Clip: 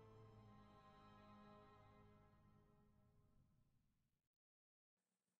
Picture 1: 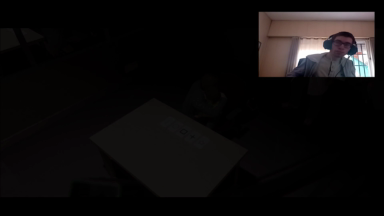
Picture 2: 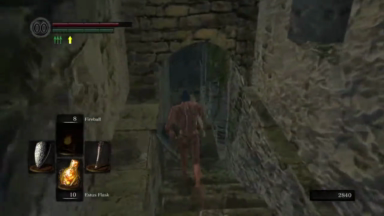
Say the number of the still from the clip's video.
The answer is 1